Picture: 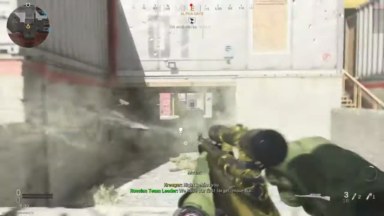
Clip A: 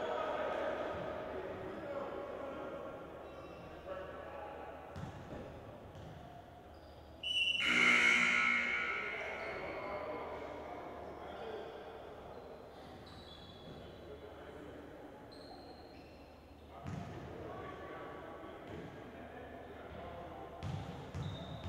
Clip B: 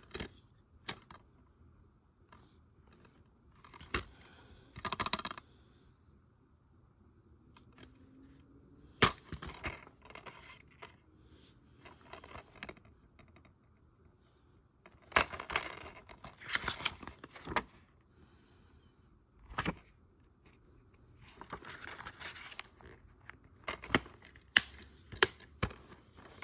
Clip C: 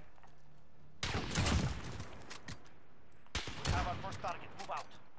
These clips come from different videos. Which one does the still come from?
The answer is C